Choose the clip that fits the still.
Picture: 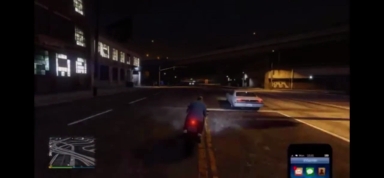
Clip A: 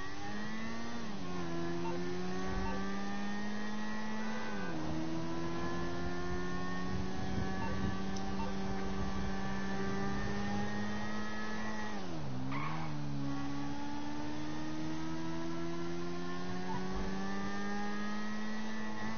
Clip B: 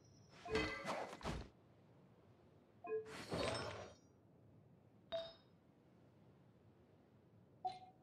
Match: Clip A